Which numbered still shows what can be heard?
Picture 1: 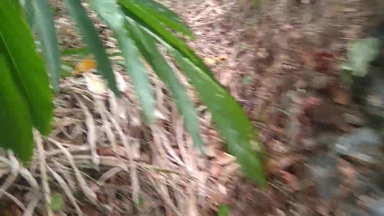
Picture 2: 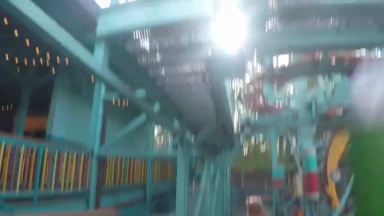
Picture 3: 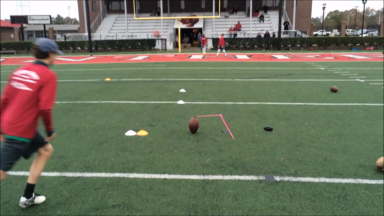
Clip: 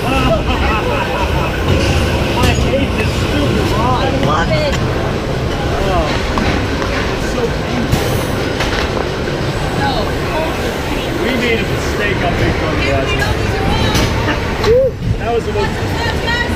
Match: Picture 2